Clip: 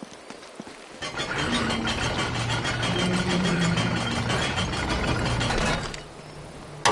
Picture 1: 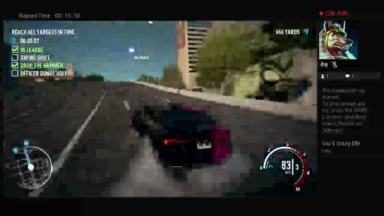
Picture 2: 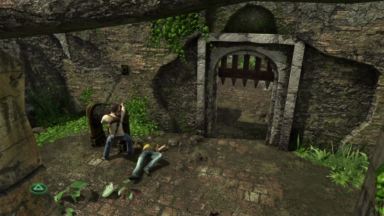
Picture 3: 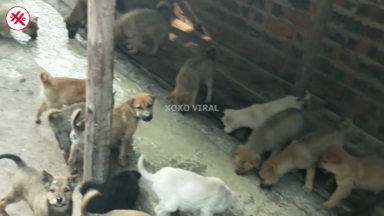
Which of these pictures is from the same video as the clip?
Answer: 2